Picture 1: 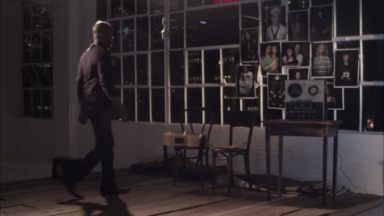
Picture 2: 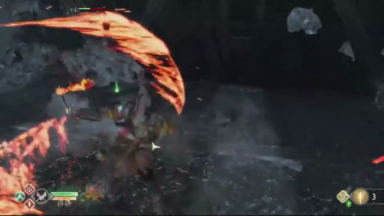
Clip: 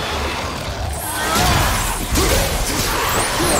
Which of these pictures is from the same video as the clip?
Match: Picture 2